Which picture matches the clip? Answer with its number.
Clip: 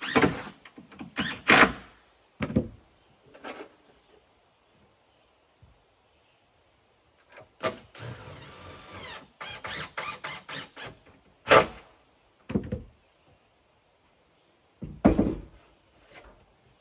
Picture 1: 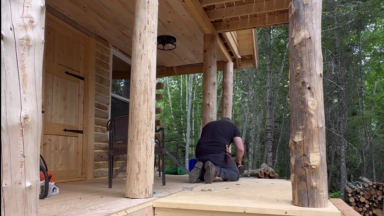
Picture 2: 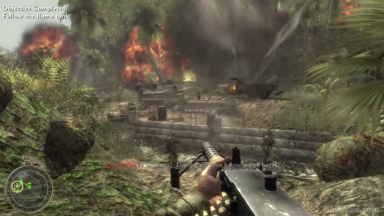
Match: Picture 1